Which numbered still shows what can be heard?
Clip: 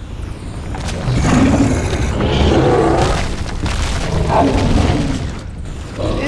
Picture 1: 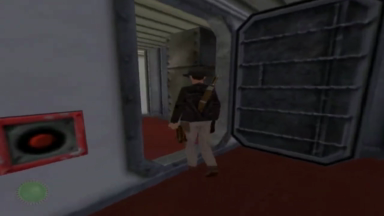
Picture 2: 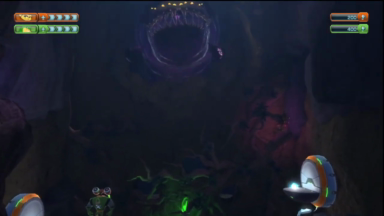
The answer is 2